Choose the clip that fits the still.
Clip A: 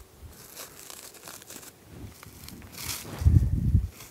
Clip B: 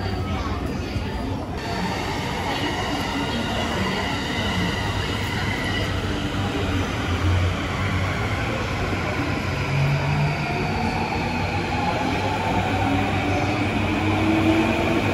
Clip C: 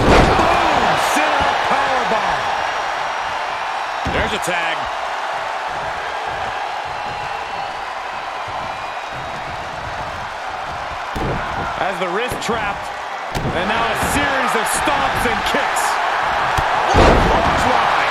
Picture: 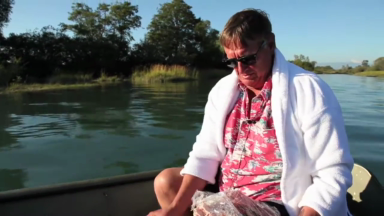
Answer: A